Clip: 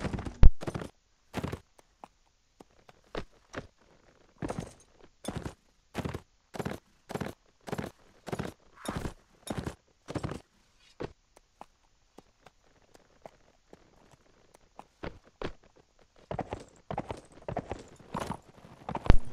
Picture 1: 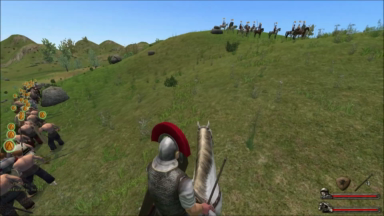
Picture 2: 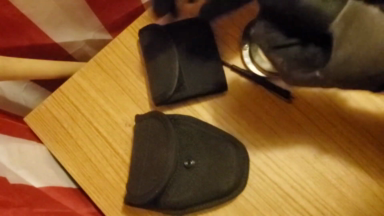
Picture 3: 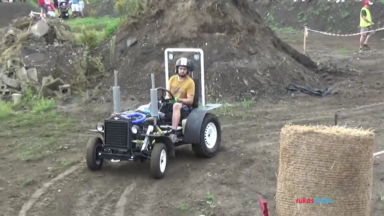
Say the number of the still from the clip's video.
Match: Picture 1